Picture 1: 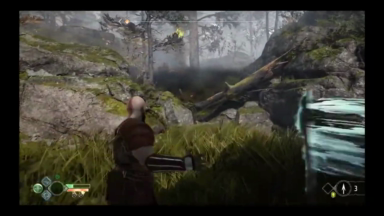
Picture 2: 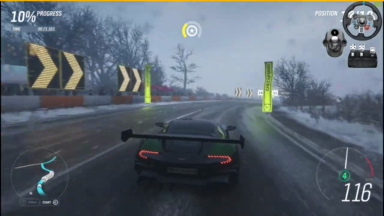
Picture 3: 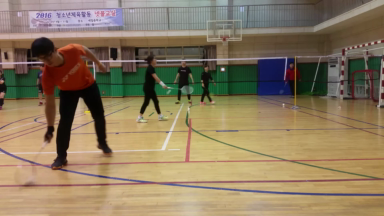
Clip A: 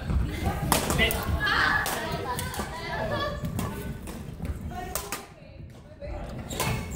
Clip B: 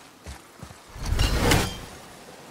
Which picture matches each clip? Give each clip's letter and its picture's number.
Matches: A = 3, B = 1